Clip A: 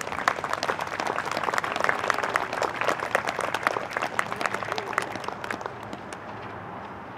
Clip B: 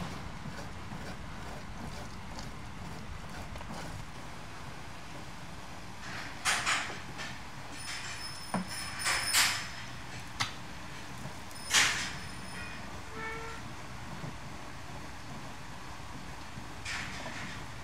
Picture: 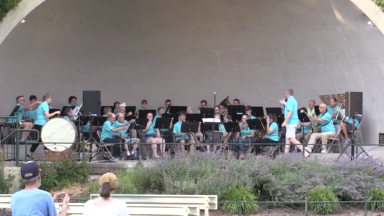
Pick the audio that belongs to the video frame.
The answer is A